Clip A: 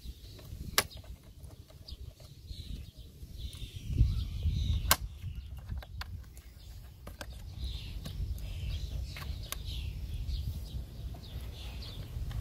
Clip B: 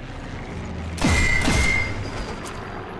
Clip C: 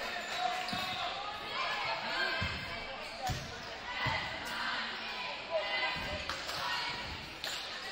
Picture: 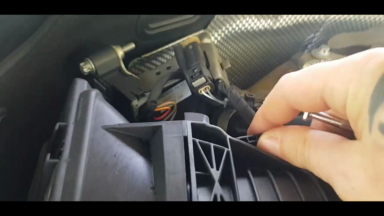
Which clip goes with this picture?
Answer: A